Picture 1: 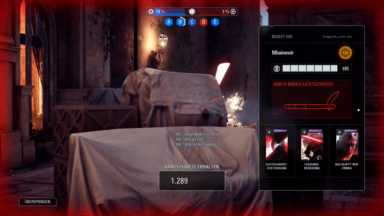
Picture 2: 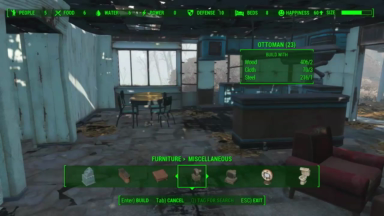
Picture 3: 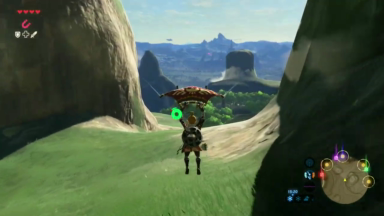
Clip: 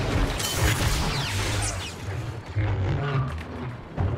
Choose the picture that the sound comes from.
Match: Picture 1